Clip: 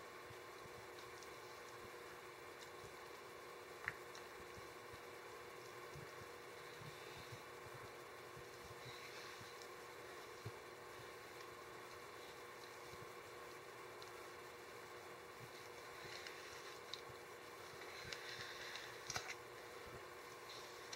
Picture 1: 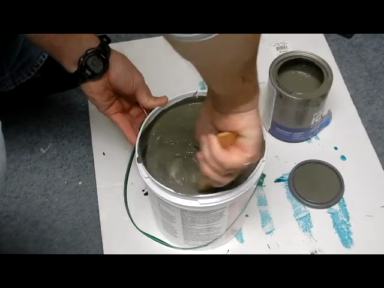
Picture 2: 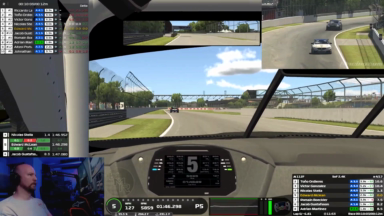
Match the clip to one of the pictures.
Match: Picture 1